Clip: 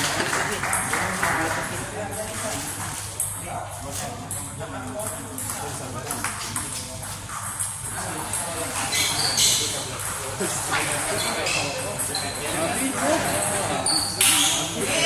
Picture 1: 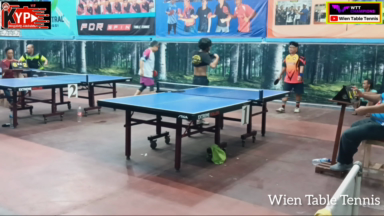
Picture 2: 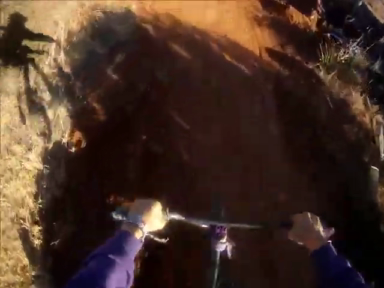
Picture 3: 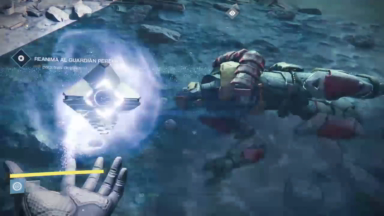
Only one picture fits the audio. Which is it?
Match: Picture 1